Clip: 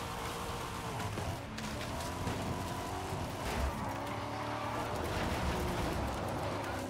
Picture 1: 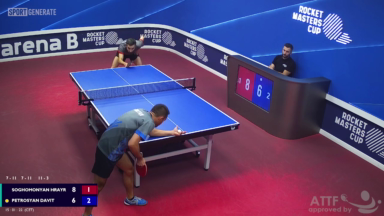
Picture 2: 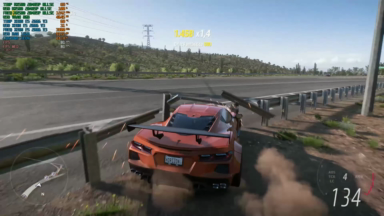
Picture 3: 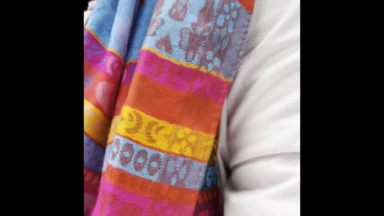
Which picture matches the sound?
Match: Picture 2